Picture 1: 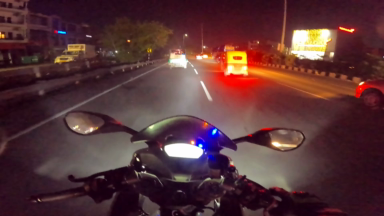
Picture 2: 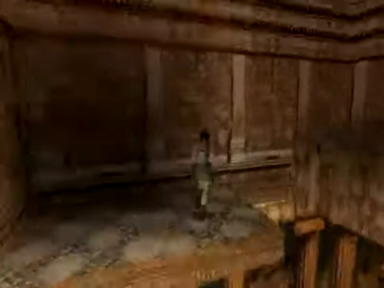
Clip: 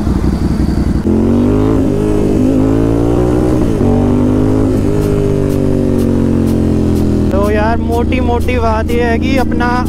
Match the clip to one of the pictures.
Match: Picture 1